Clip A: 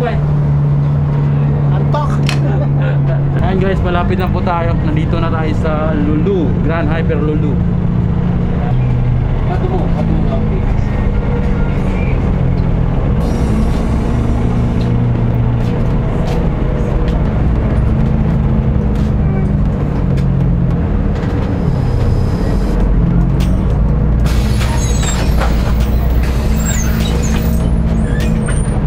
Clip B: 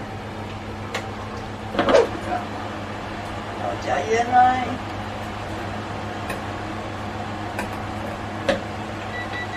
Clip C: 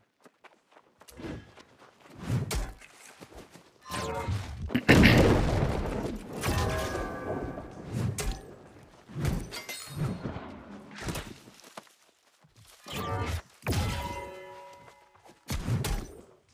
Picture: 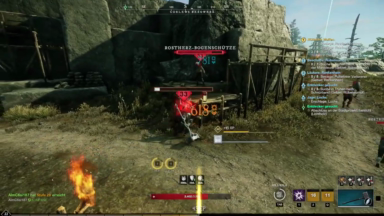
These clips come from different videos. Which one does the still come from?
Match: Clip C